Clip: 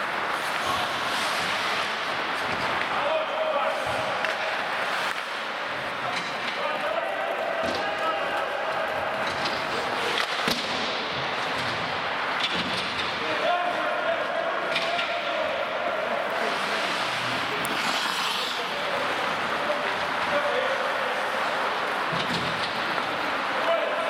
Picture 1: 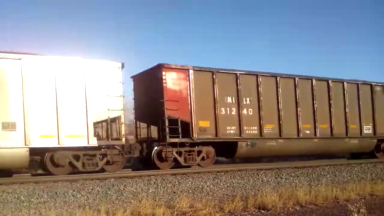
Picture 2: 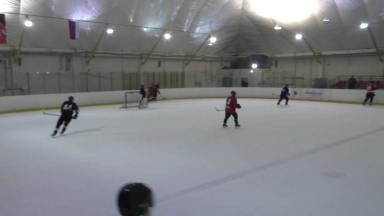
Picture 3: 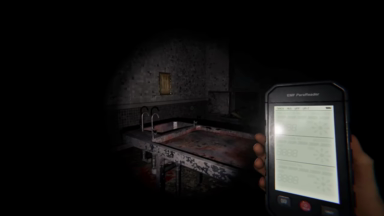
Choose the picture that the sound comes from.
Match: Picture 2